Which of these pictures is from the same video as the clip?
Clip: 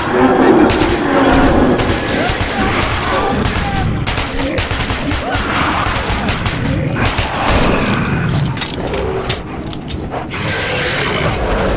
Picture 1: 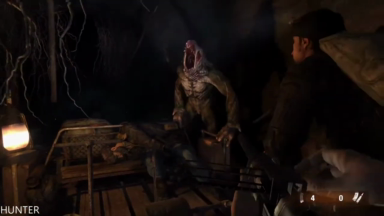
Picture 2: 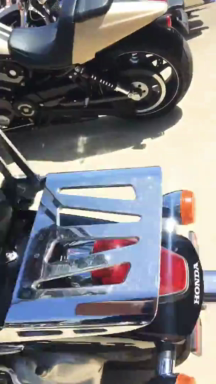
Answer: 1